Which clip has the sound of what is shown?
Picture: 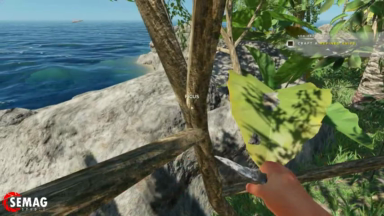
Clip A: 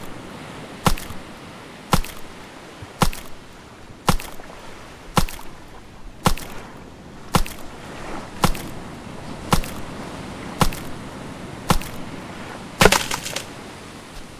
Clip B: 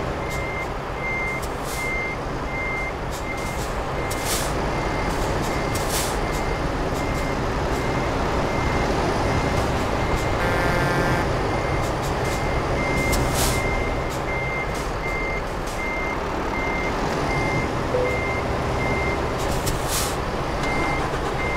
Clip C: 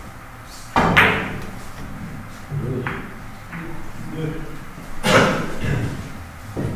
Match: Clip A